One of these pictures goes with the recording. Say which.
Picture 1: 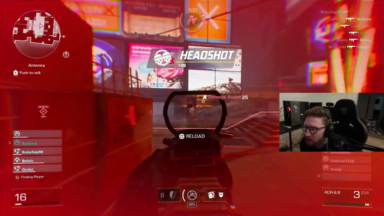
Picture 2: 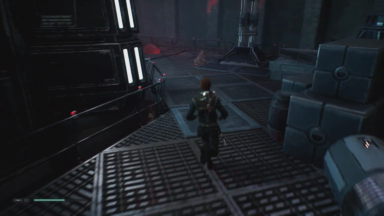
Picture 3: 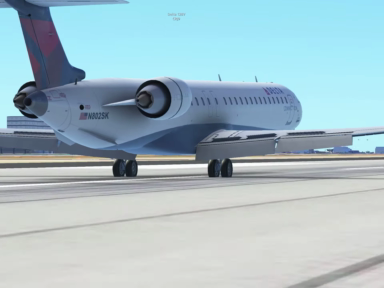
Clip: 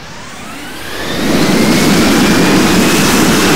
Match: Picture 3